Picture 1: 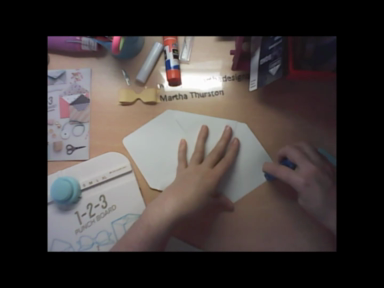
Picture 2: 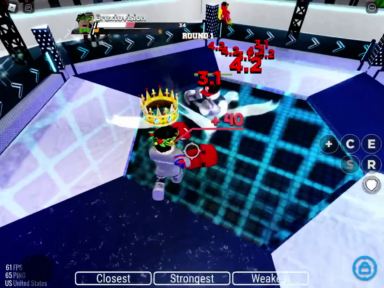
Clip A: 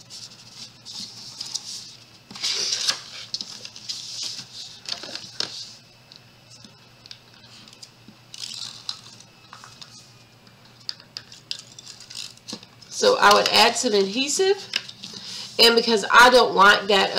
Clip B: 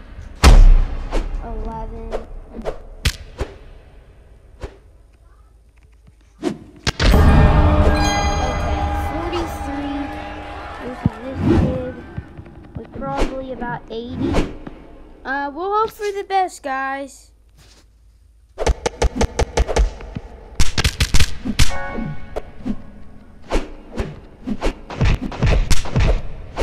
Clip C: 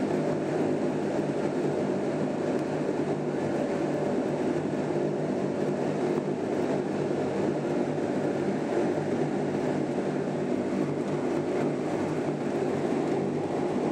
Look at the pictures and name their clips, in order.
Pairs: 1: A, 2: B